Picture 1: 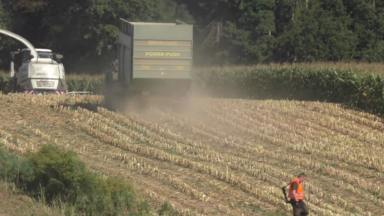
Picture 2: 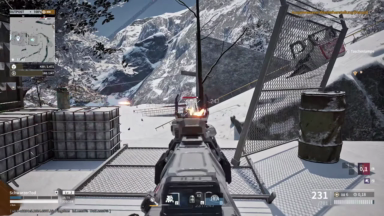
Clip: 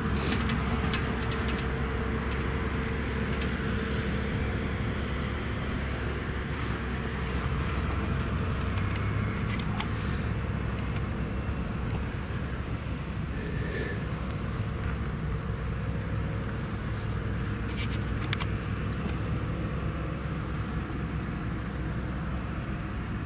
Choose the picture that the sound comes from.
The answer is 1